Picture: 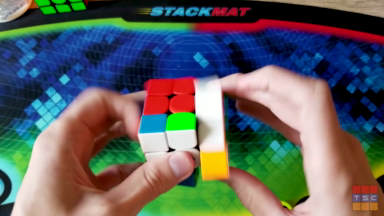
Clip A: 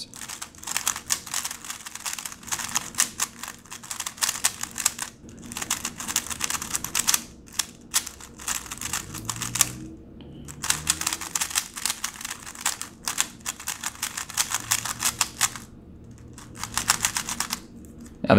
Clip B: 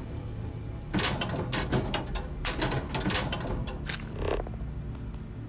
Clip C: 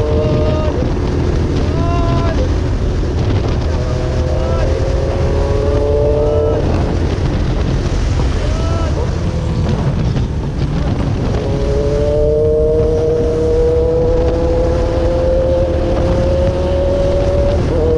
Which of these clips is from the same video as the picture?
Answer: A